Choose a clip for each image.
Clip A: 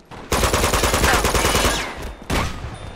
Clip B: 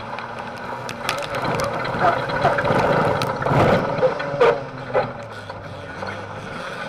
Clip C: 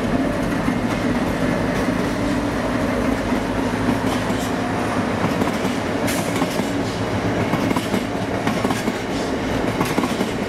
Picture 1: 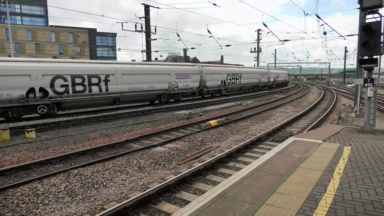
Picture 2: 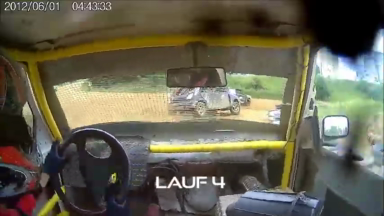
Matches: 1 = C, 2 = B